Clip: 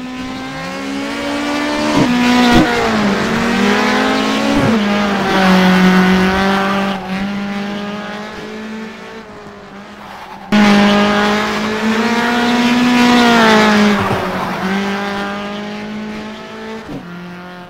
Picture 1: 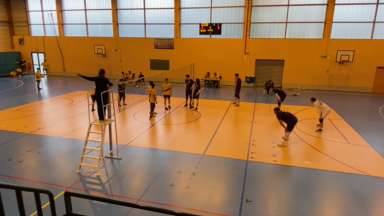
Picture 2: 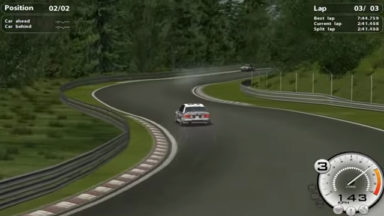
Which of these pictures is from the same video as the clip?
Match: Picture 2